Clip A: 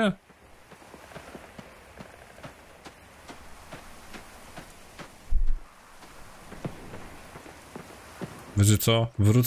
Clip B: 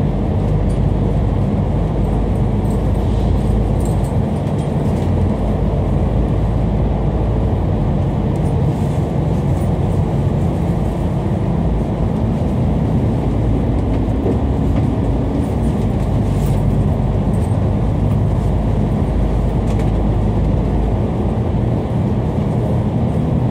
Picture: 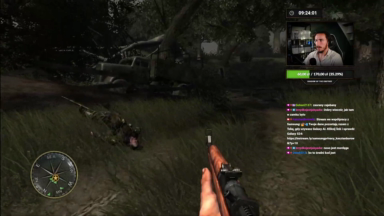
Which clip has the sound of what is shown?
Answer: A